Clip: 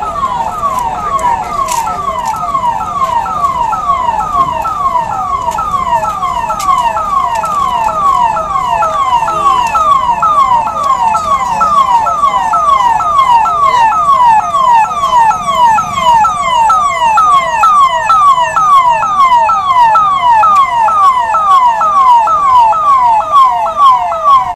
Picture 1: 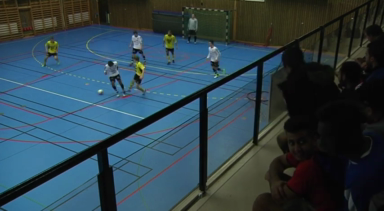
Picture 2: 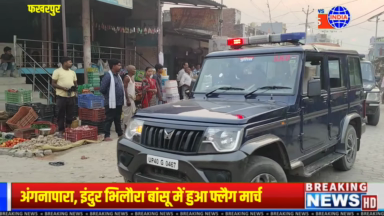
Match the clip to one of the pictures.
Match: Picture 2